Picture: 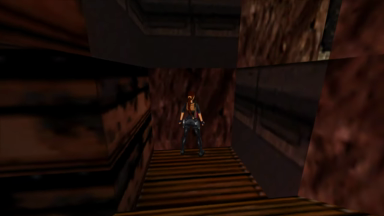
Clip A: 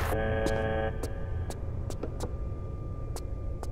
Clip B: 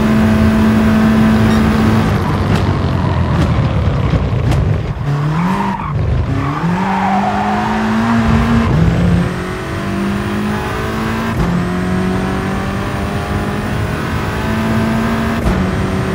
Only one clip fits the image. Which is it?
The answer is A